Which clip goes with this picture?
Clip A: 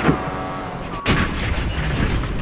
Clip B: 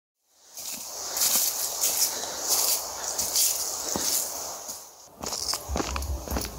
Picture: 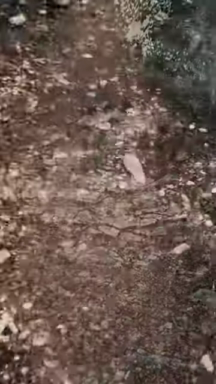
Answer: B